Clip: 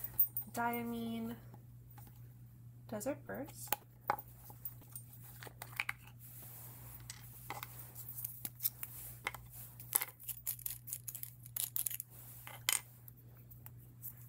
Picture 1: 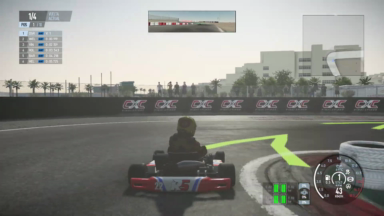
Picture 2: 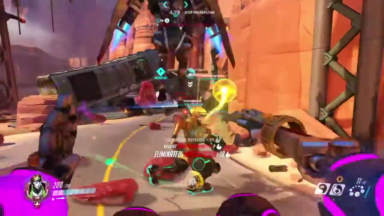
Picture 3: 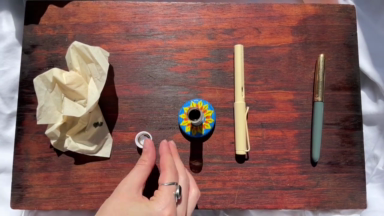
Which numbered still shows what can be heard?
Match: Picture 3